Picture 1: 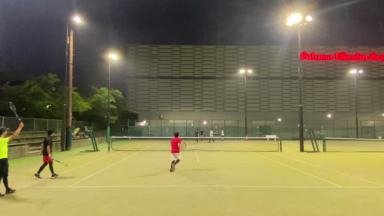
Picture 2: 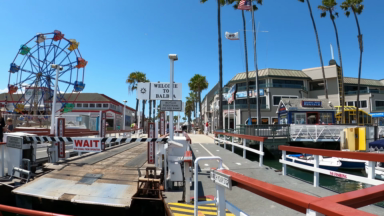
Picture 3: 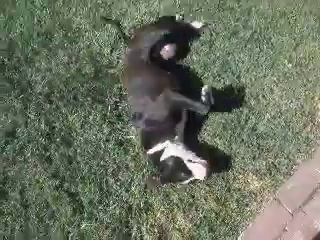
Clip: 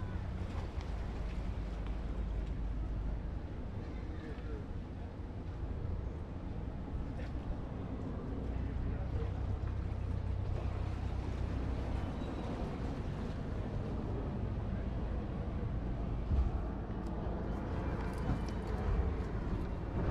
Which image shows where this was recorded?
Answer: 2